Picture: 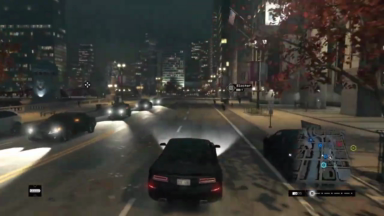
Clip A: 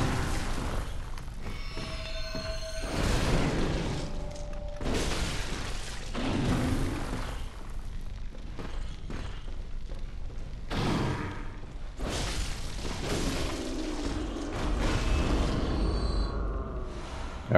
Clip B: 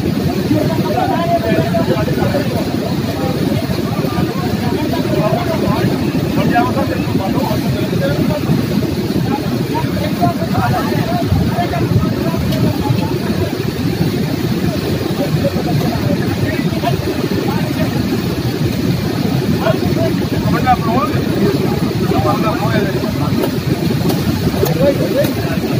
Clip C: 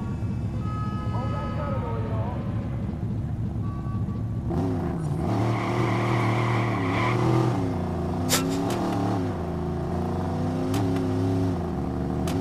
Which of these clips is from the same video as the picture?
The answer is C